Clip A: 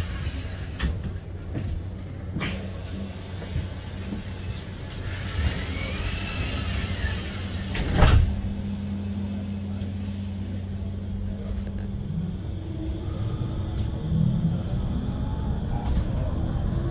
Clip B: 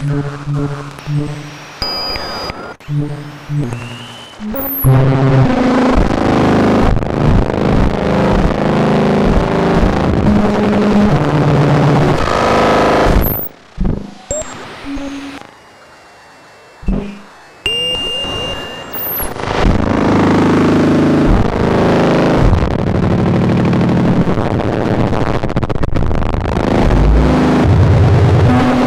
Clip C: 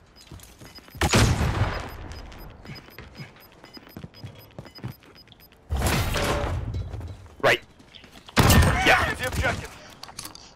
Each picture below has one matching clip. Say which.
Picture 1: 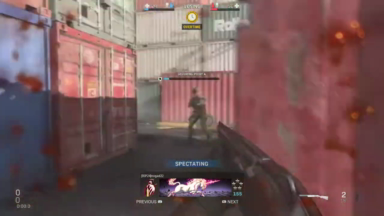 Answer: C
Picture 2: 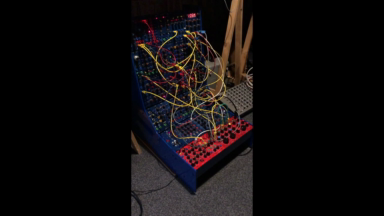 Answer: B